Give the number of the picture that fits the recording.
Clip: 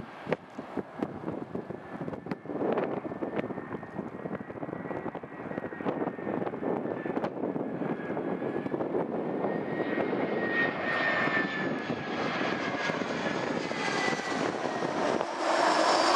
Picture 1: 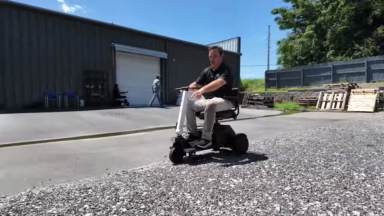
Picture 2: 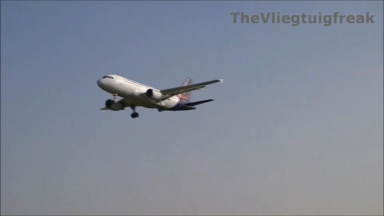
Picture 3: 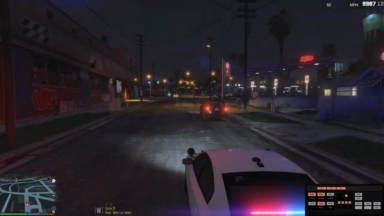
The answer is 2